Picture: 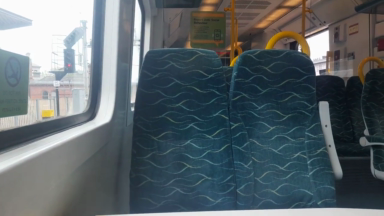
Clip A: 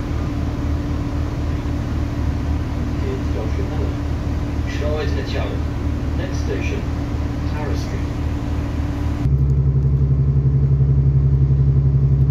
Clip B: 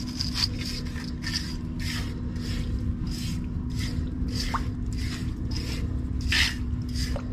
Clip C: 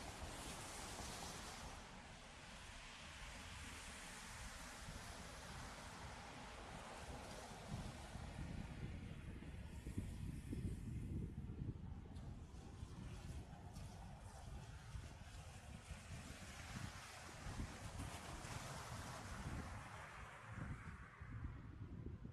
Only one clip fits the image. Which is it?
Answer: A